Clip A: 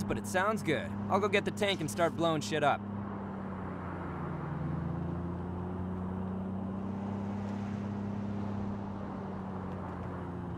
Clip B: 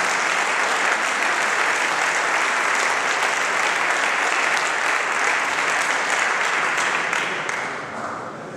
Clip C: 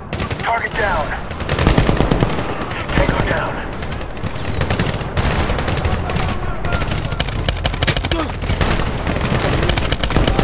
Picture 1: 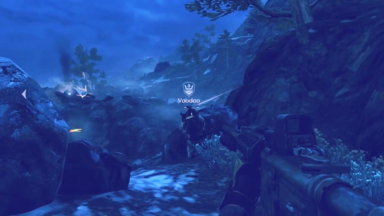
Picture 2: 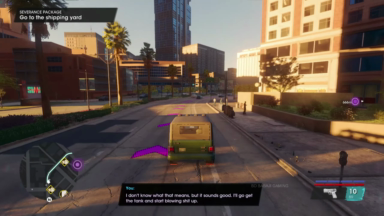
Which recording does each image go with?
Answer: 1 C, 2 A